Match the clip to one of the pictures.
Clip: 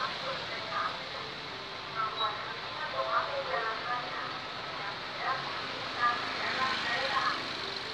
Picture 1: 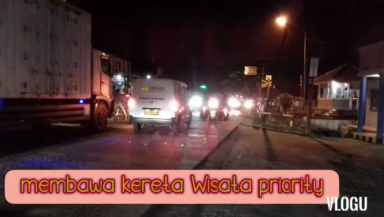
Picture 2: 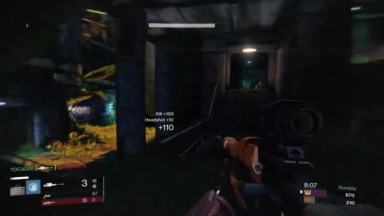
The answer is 1